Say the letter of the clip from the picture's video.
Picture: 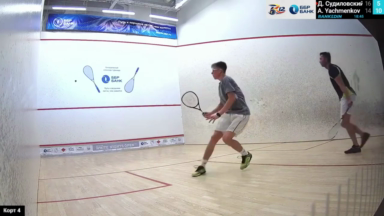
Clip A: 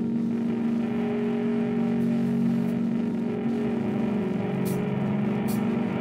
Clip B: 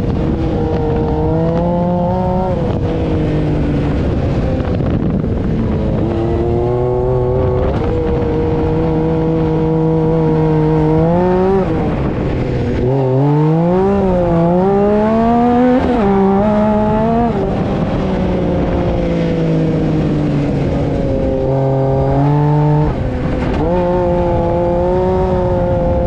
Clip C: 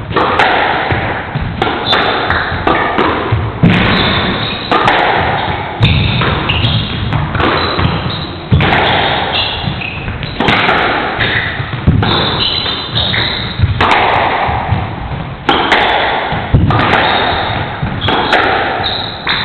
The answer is C